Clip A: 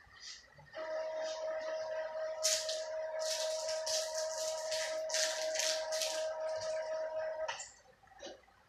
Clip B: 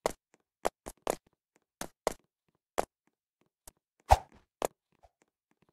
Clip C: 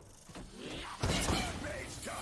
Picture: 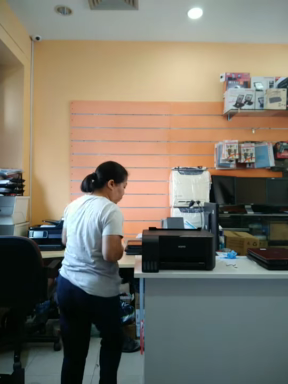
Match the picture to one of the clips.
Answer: A